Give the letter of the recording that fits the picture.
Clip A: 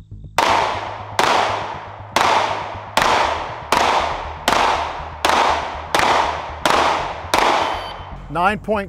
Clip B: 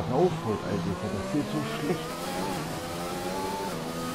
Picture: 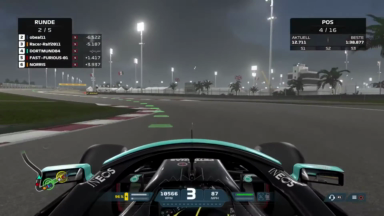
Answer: B